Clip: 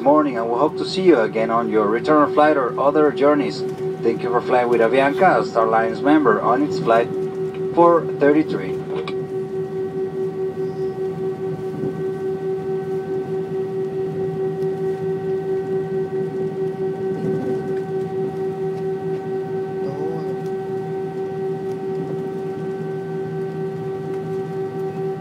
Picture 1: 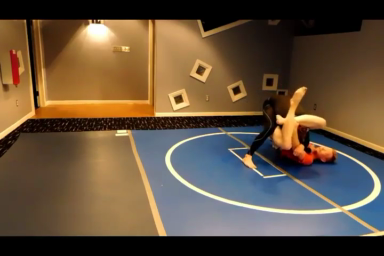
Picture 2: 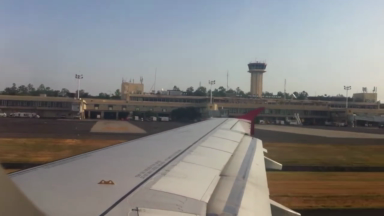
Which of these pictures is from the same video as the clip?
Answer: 2